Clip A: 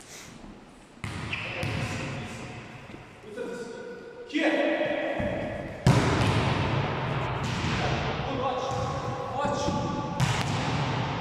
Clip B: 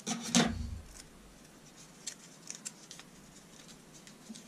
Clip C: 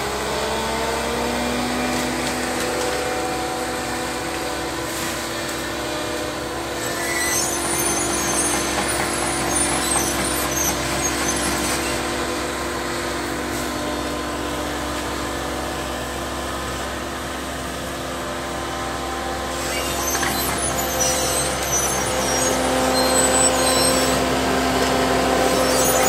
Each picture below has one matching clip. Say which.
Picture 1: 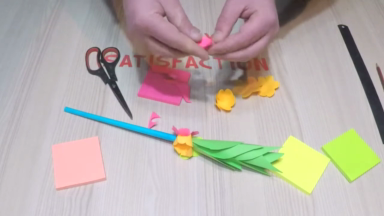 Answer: B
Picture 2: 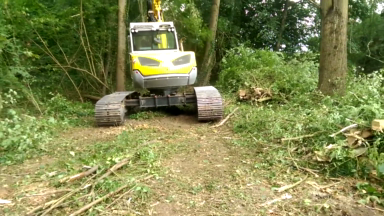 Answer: C